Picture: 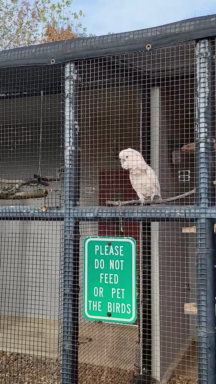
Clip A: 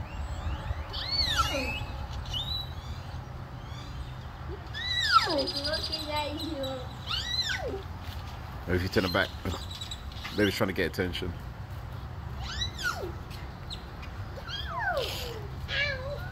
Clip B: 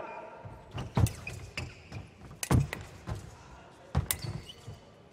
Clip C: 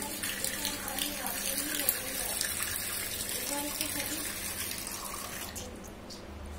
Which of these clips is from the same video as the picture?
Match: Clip A